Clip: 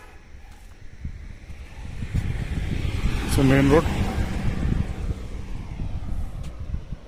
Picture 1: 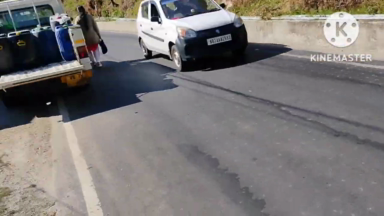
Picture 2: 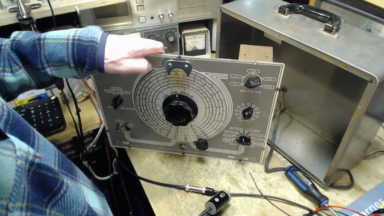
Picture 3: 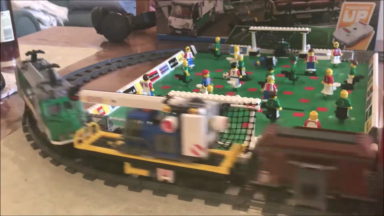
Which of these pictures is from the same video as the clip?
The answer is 1